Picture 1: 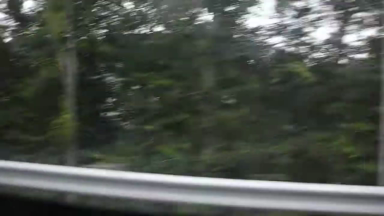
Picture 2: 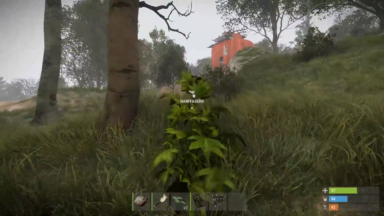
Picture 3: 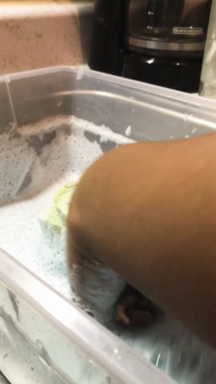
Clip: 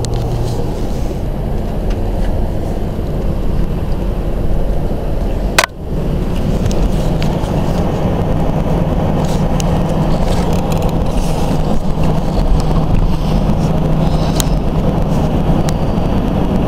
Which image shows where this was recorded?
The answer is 1